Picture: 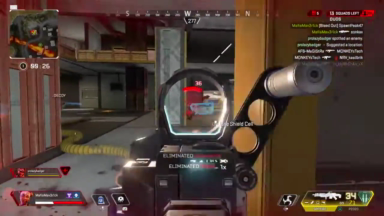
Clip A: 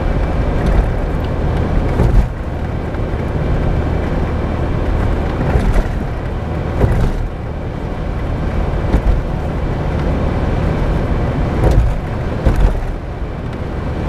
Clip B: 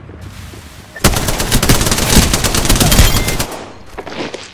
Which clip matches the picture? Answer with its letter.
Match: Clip B